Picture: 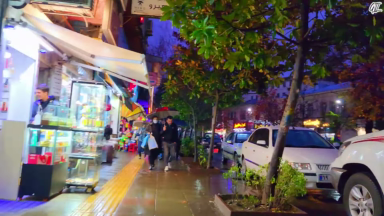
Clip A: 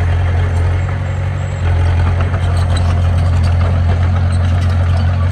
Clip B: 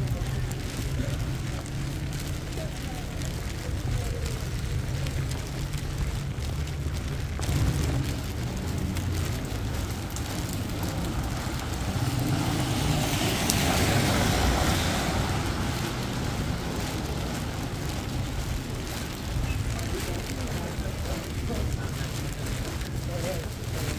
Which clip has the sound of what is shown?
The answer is B